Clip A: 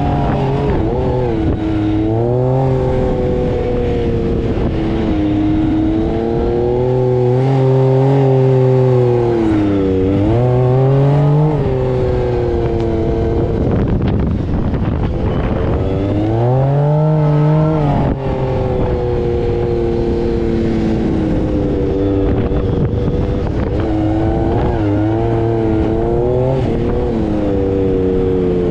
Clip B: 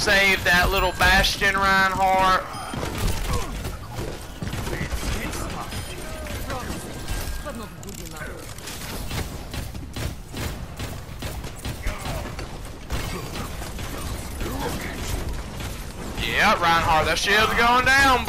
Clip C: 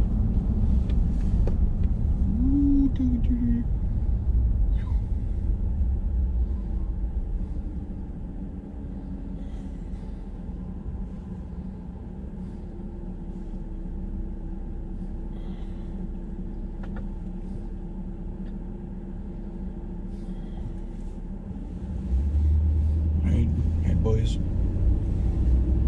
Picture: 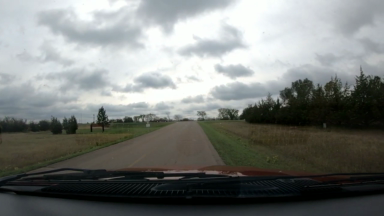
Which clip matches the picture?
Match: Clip C